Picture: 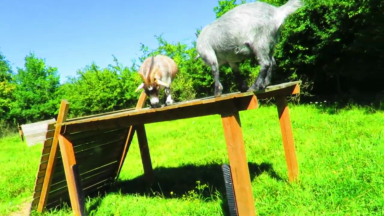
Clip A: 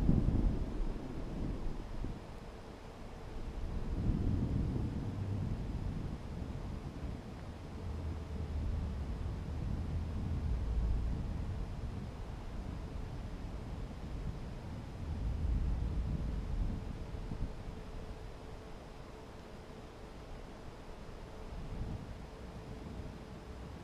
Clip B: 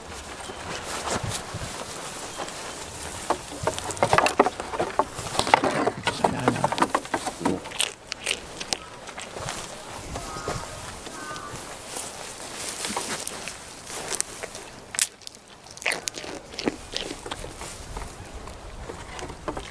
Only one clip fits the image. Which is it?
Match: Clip B